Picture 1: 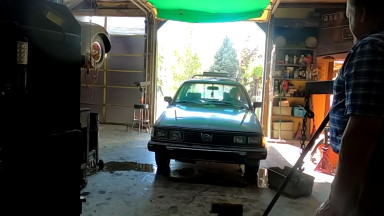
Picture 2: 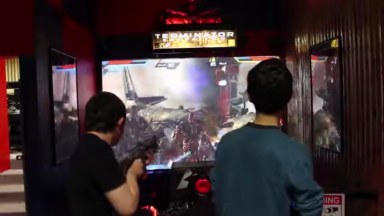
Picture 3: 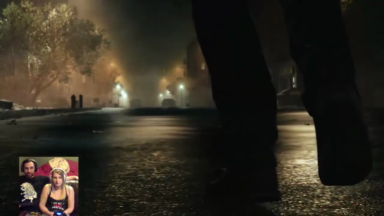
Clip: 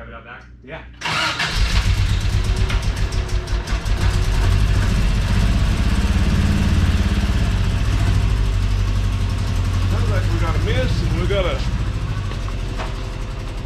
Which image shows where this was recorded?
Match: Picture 1